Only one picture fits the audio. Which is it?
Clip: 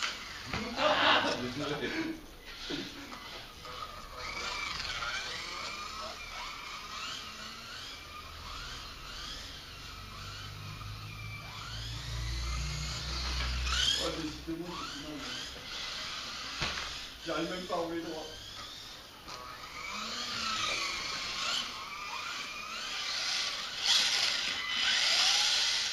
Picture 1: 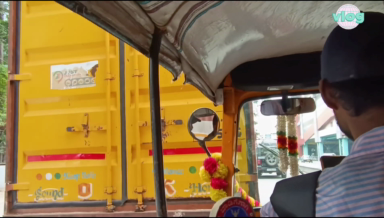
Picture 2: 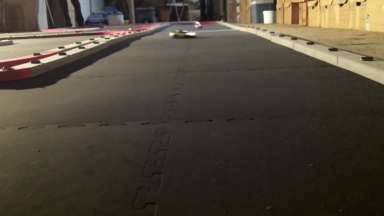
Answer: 2